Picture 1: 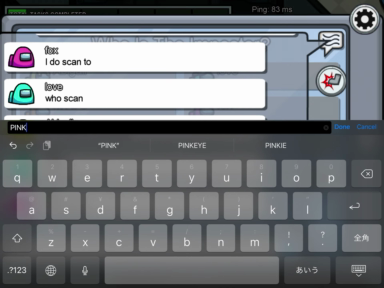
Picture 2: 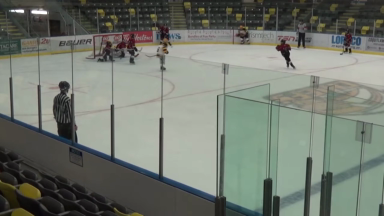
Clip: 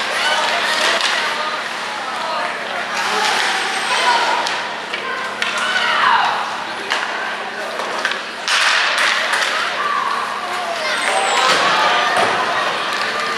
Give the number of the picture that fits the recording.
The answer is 2